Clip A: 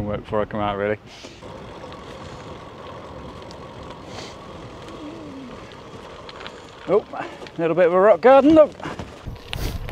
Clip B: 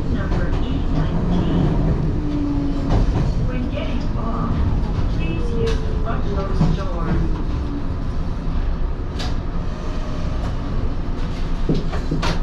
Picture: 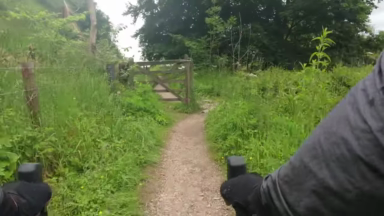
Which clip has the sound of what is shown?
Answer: A